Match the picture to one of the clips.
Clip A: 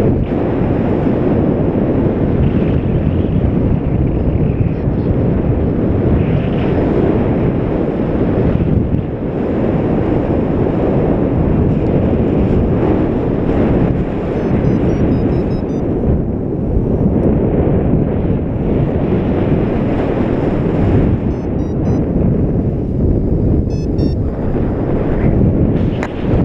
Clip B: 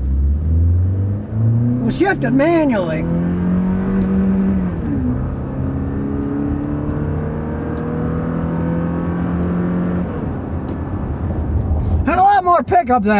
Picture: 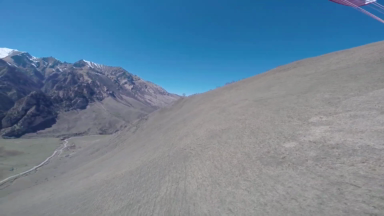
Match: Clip A